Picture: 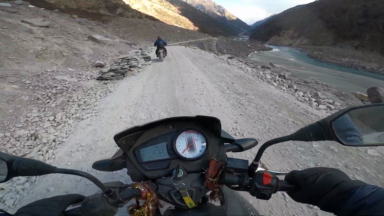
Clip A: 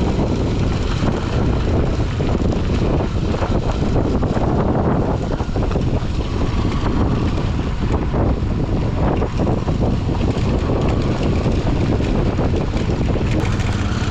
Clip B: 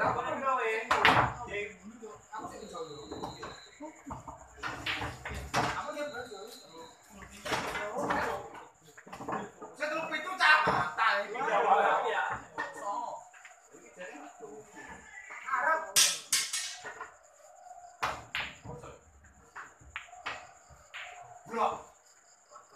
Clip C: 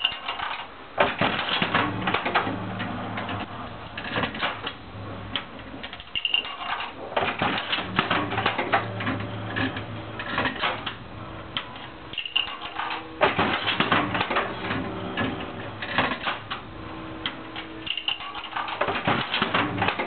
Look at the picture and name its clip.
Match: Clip A